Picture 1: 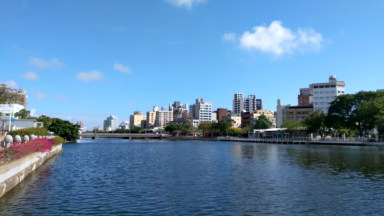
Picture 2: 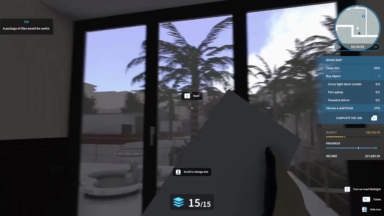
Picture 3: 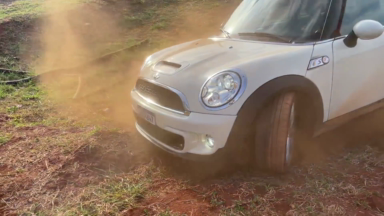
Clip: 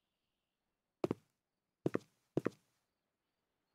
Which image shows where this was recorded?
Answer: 2